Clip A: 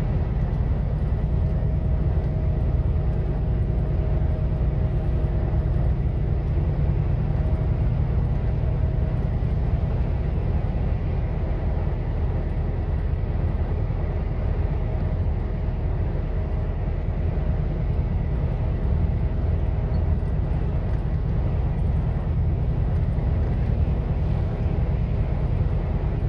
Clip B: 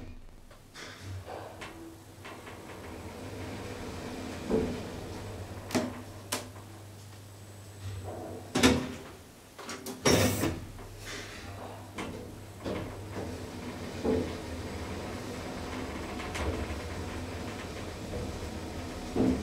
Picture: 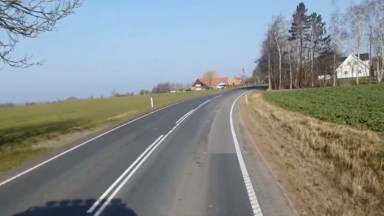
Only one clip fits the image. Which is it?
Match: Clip A